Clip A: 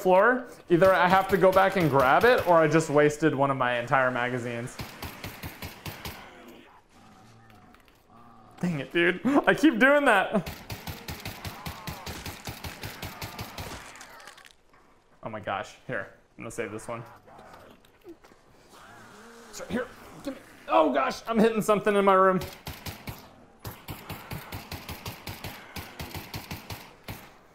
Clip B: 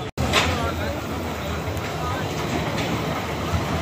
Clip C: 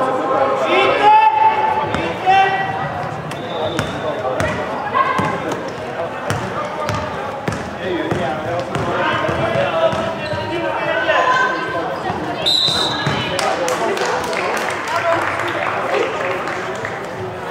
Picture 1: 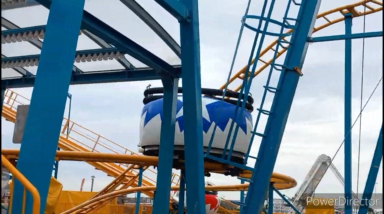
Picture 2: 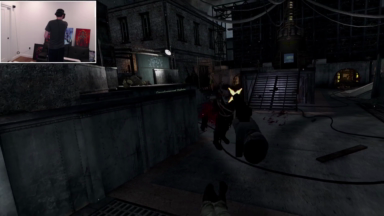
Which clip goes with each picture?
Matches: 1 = B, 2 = A